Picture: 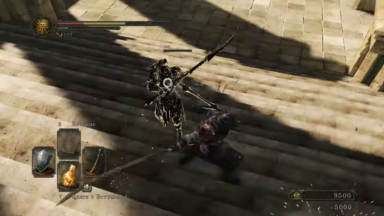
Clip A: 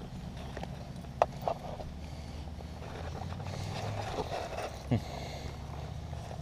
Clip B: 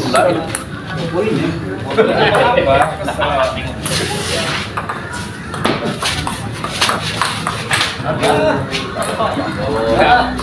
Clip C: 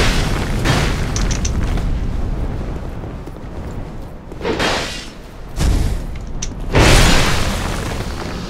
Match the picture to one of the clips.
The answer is C